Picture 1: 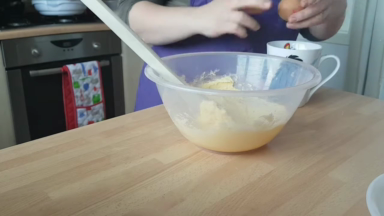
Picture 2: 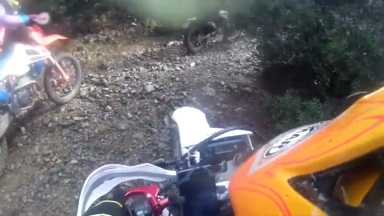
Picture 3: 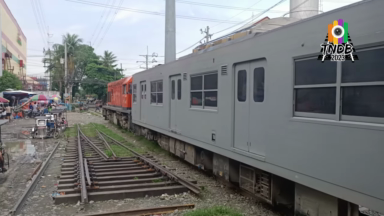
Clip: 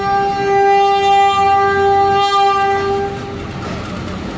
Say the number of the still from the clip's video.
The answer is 3